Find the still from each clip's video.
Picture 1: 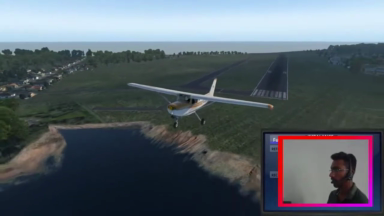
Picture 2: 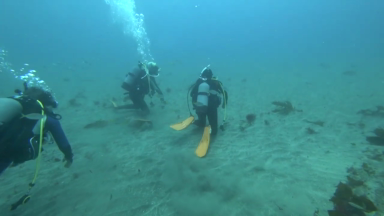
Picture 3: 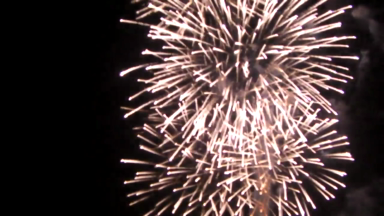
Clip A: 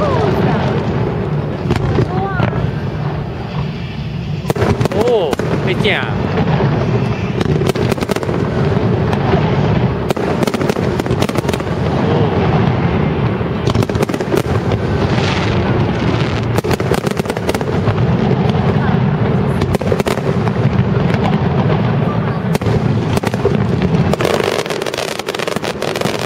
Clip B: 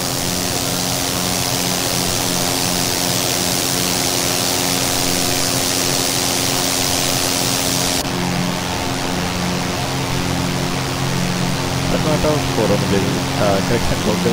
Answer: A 3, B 1